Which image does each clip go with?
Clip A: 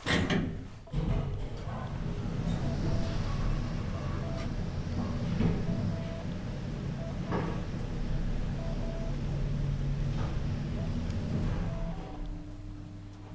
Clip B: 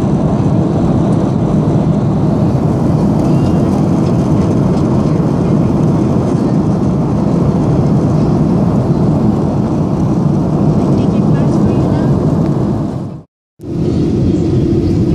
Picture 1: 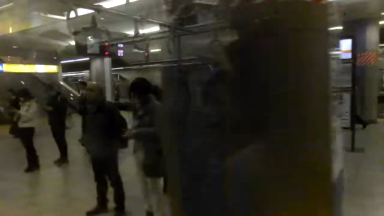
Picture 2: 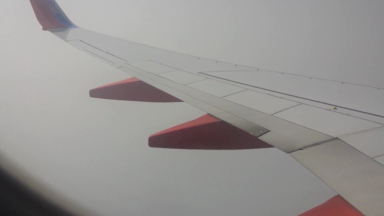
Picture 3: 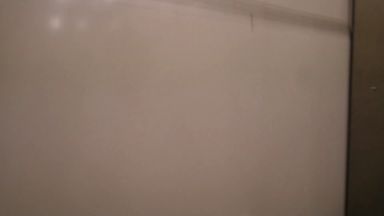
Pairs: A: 3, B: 2